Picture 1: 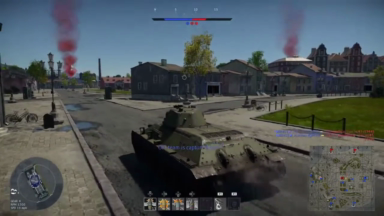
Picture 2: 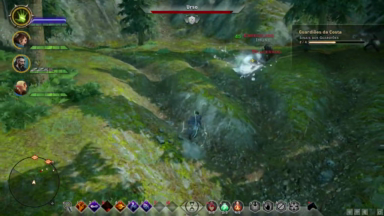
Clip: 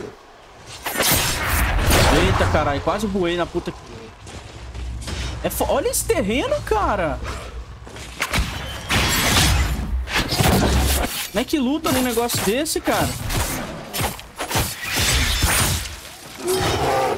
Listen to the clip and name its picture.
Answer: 2